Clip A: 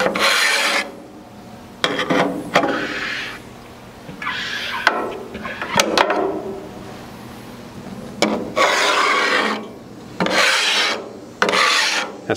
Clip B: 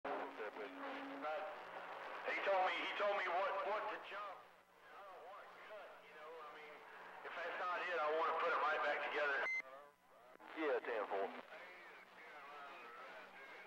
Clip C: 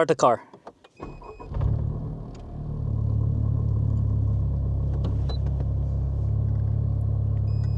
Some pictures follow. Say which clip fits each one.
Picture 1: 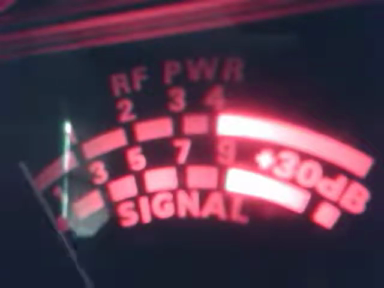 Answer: B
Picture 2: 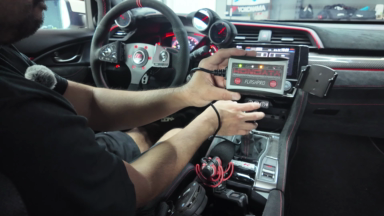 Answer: C